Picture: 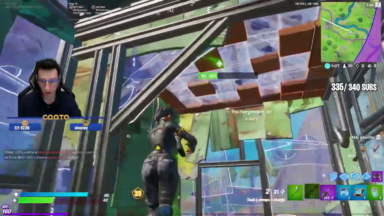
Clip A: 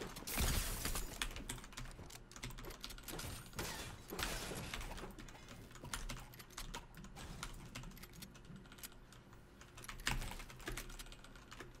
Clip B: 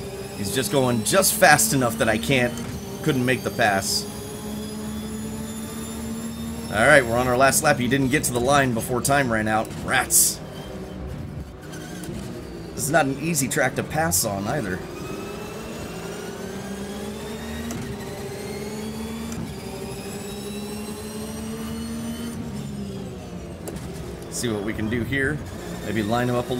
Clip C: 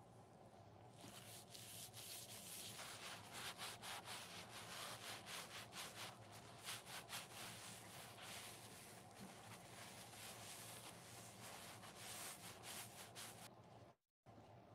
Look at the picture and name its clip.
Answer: A